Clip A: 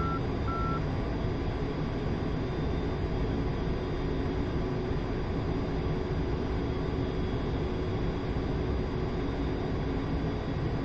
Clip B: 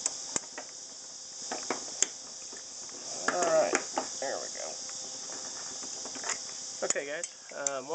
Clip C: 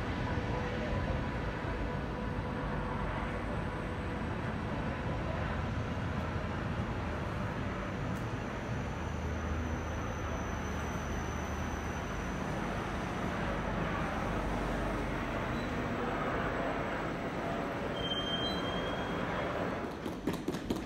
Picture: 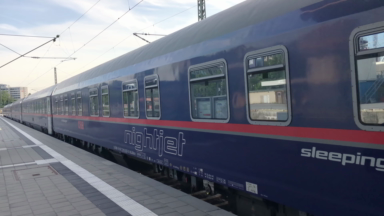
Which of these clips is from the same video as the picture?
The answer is C